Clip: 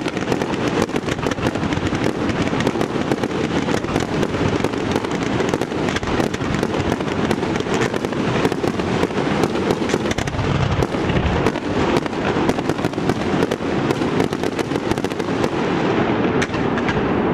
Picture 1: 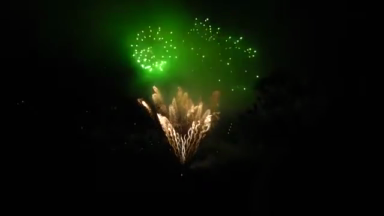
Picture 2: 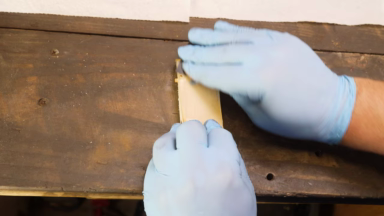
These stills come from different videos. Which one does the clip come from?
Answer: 1